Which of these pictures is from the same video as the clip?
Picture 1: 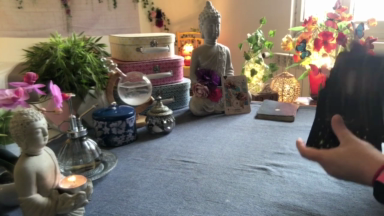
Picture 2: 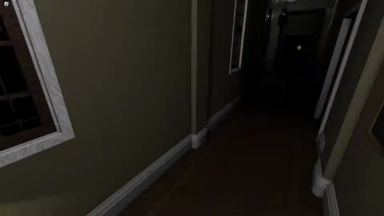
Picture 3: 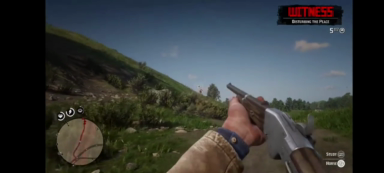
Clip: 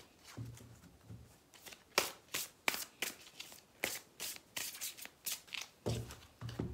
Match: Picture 1